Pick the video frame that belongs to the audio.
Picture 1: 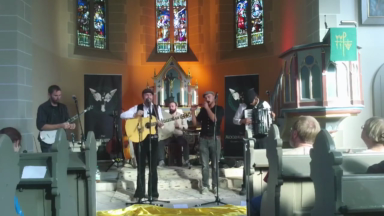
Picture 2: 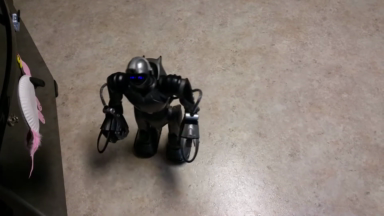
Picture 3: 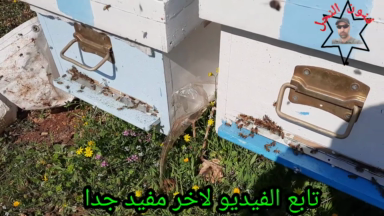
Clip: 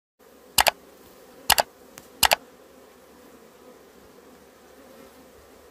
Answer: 3